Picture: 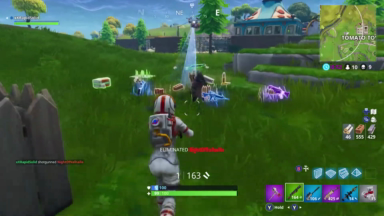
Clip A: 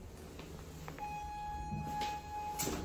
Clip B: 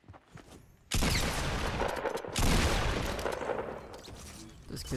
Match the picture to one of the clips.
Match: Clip B